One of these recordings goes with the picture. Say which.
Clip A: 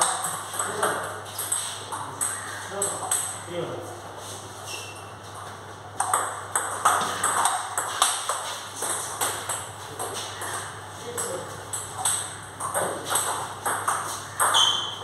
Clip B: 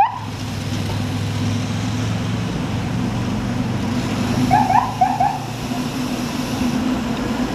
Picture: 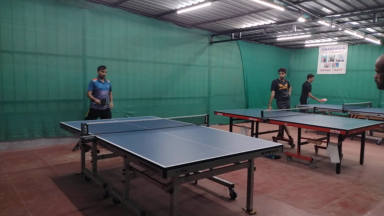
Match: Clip A